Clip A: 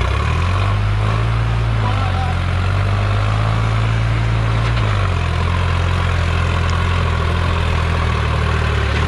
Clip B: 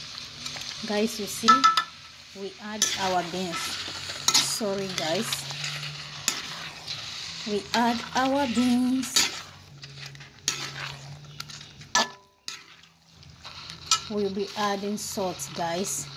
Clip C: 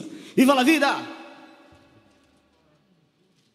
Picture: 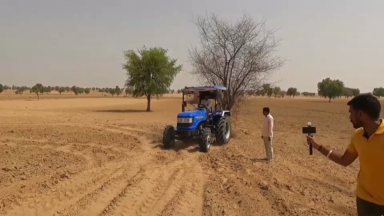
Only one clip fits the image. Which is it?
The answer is A